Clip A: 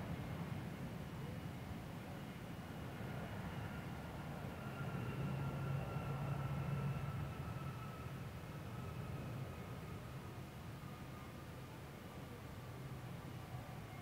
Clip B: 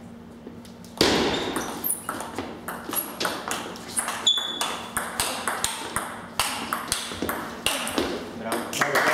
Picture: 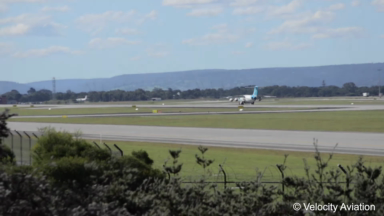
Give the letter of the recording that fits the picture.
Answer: A